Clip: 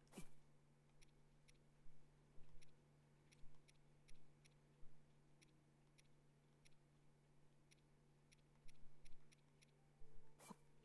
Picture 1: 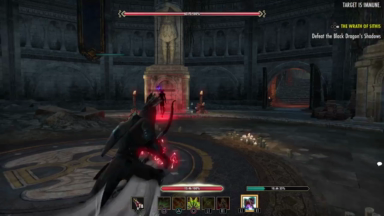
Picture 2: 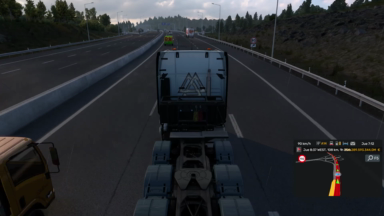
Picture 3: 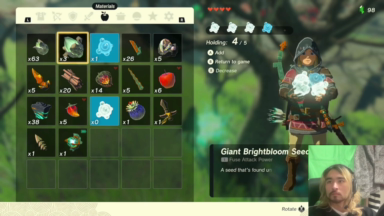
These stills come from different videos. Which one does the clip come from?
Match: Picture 3